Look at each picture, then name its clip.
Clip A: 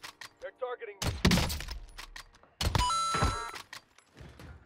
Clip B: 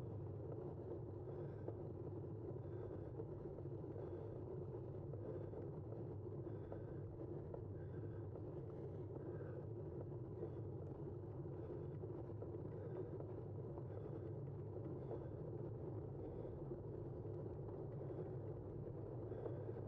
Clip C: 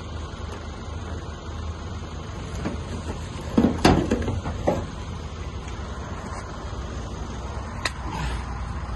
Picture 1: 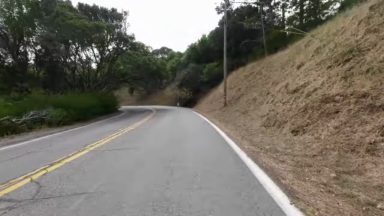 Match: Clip B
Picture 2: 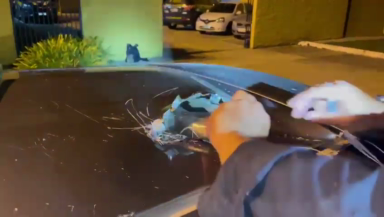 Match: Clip C